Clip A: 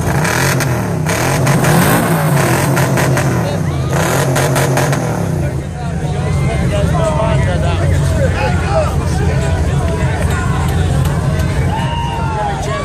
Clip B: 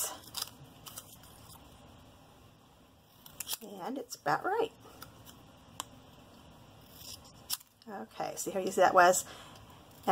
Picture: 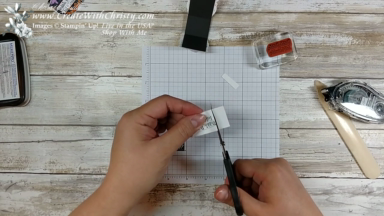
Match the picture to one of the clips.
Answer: B